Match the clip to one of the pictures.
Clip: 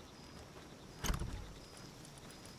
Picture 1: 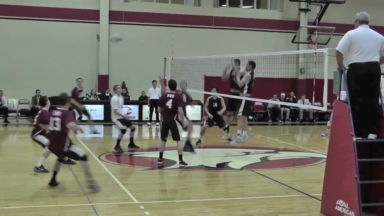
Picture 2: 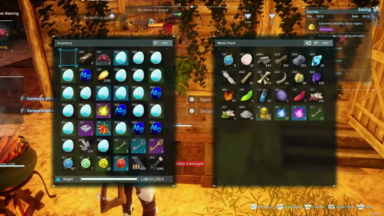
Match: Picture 2